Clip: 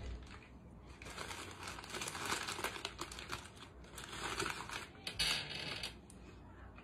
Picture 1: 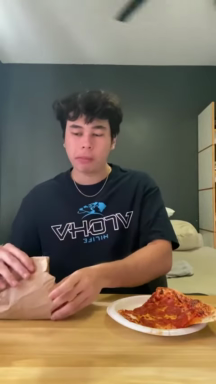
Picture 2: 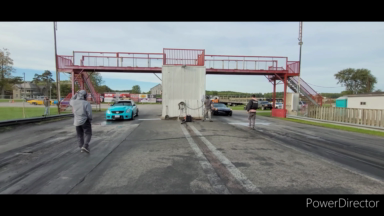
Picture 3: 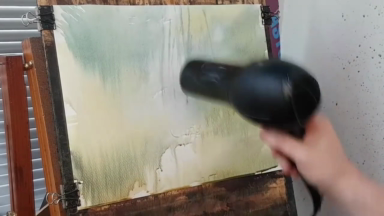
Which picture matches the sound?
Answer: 1